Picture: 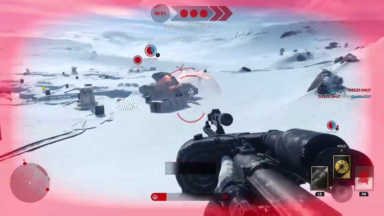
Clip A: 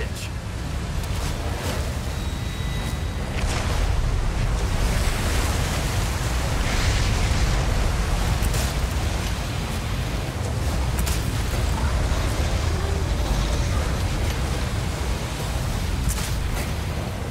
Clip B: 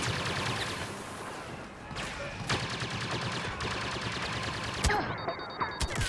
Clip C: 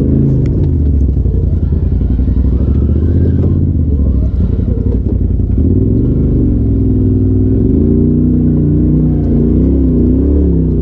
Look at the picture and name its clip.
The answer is B